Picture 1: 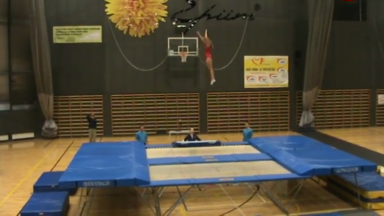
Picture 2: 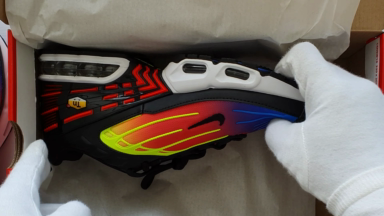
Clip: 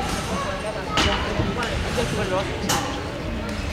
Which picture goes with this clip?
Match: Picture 1